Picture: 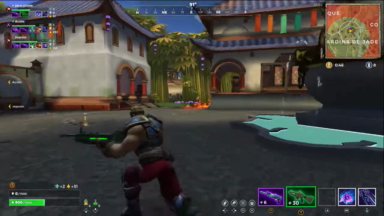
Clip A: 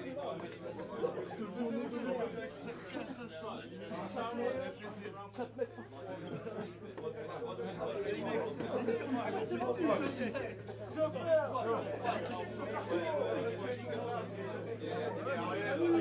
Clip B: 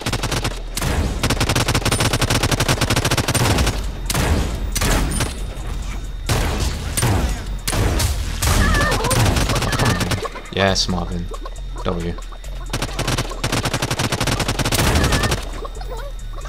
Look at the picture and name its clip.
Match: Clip B